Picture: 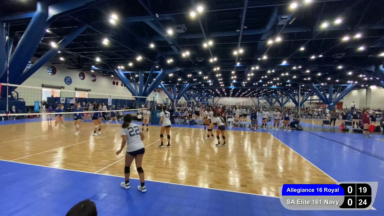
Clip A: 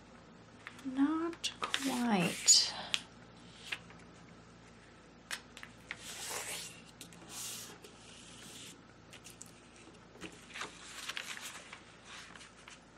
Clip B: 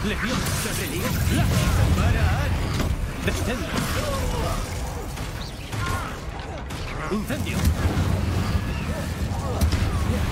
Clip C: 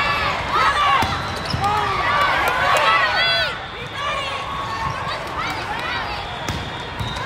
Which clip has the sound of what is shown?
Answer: C